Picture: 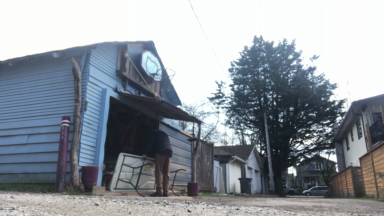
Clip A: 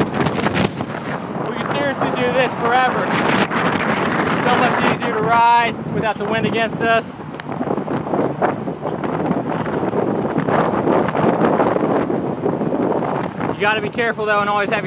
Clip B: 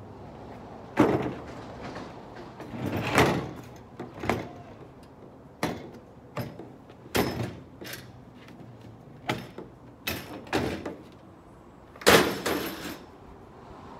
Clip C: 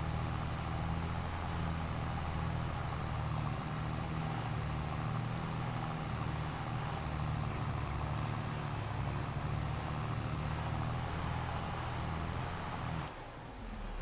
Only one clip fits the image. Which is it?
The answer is B